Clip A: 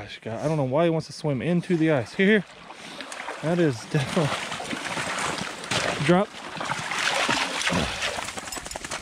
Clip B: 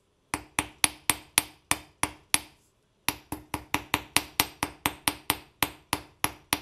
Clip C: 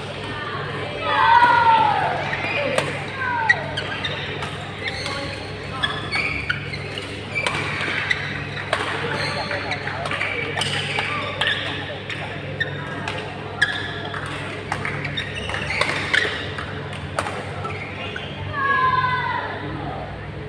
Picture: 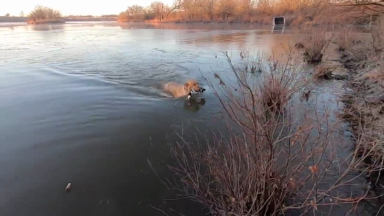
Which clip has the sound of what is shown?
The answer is A